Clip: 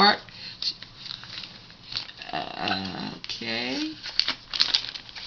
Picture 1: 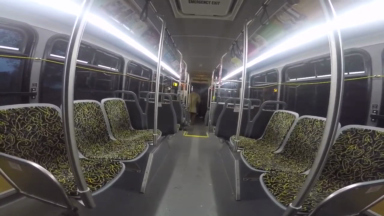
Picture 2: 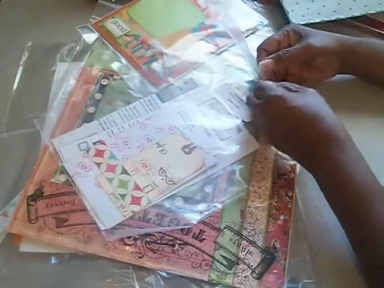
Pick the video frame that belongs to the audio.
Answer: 2